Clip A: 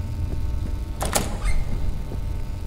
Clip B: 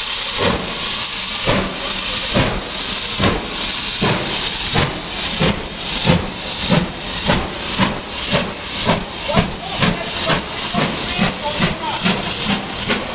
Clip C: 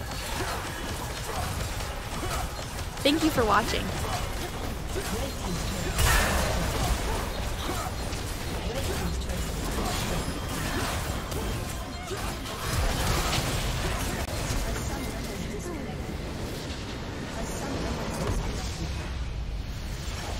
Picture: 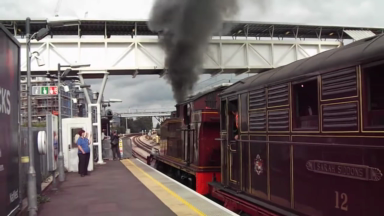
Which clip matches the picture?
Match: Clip B